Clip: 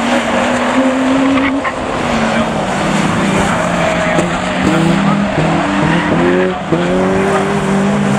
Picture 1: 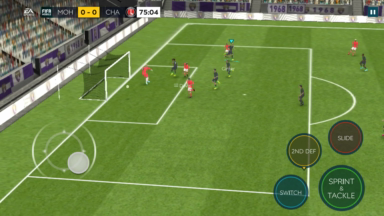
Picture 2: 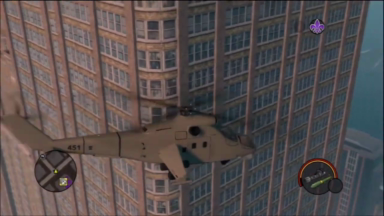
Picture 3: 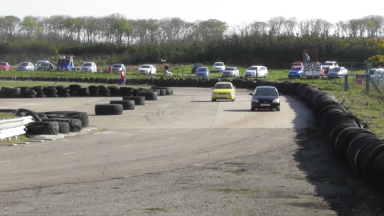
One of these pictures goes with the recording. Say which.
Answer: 3